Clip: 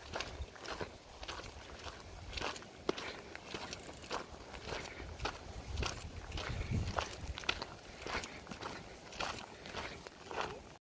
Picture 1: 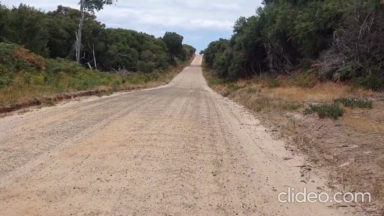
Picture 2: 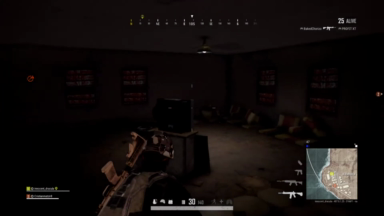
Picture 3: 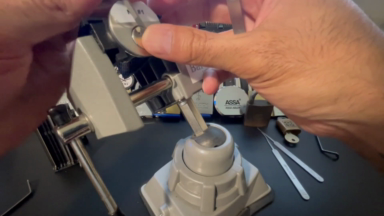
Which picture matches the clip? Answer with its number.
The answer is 1